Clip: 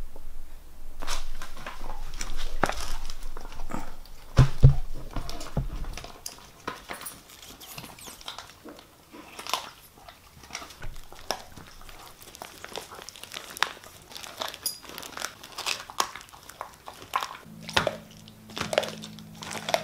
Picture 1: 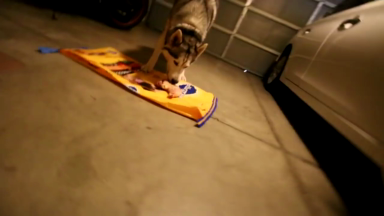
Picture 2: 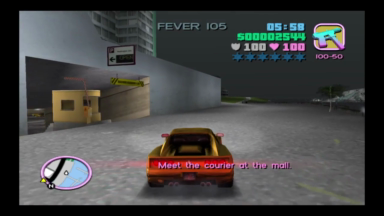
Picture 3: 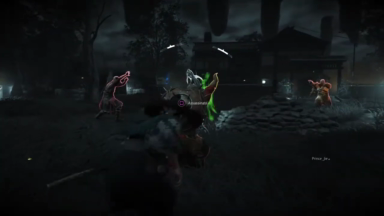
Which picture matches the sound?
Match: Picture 1